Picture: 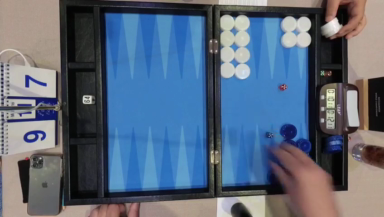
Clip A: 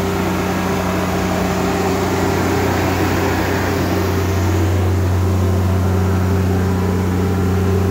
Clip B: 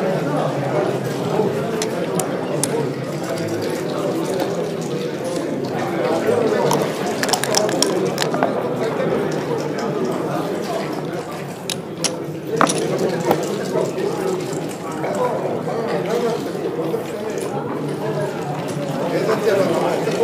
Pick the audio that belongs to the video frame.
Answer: B